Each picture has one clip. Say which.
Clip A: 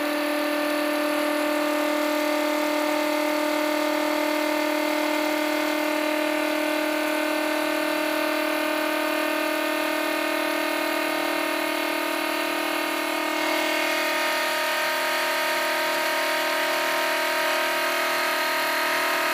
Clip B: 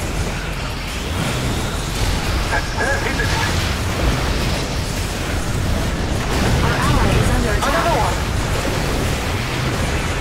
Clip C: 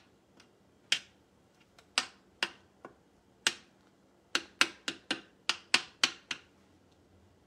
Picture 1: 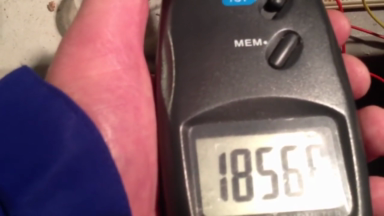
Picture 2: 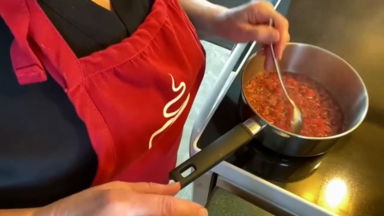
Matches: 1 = A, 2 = C